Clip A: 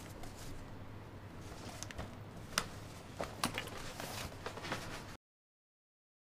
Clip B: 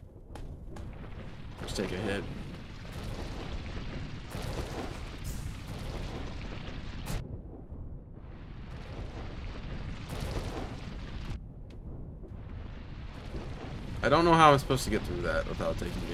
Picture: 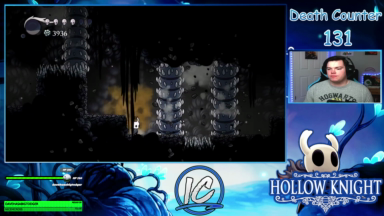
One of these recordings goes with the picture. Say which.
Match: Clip B